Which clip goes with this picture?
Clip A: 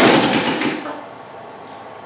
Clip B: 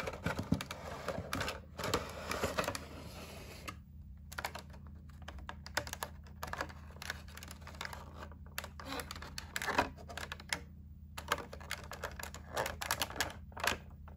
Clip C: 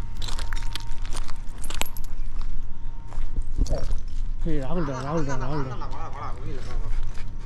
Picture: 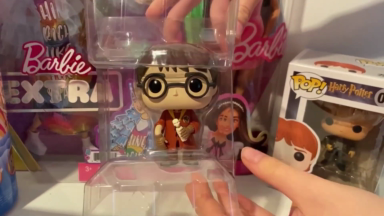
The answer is B